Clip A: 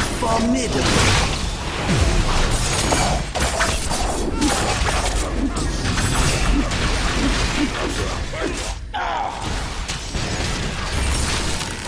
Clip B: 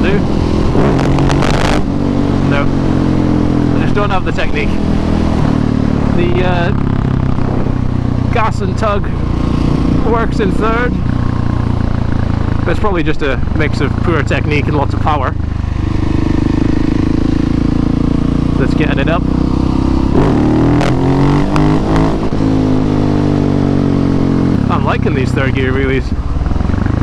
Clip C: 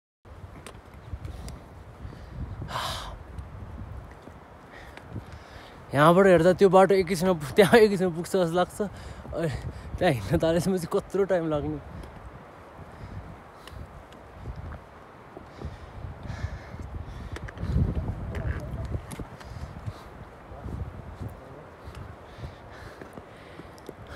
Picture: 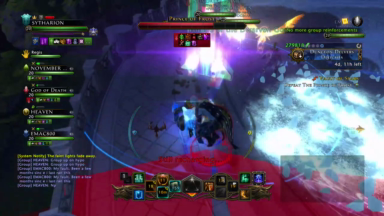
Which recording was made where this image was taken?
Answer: A